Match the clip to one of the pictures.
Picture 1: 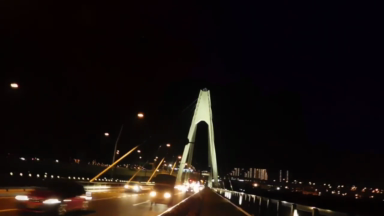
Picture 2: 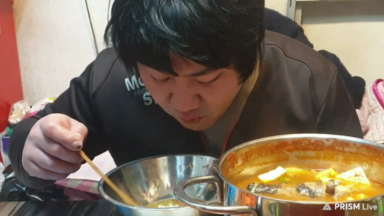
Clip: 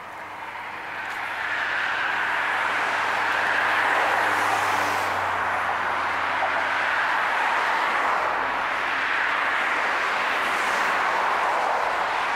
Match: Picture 1